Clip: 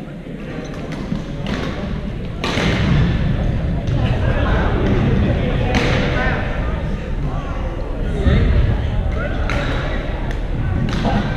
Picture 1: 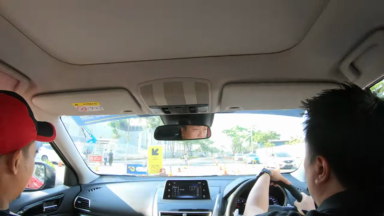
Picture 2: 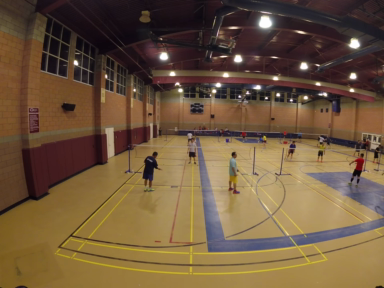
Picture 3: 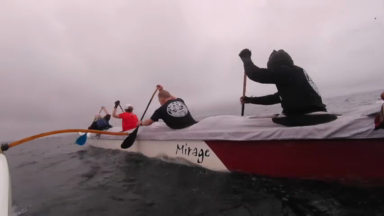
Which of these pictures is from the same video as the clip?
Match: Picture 2